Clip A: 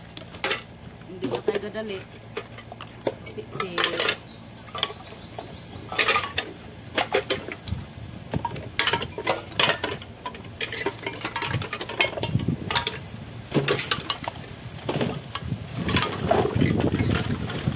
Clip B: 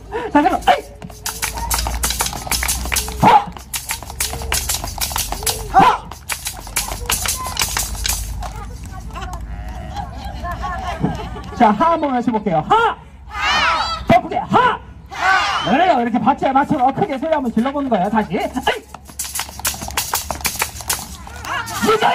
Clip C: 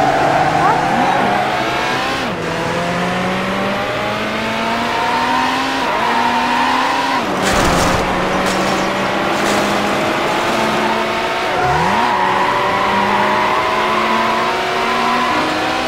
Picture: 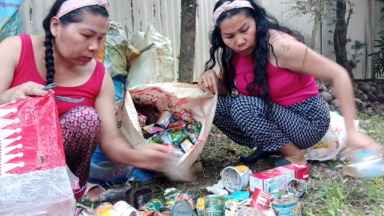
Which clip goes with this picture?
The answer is A